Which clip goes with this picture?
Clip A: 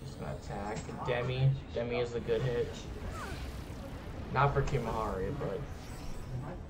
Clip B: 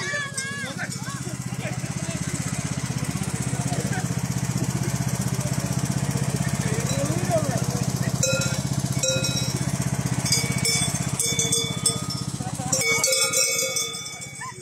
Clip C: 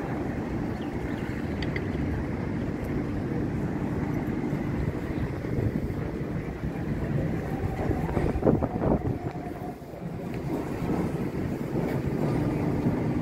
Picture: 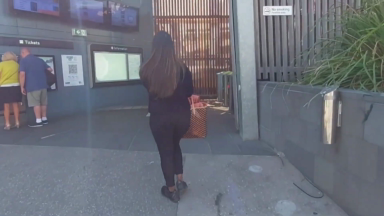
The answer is C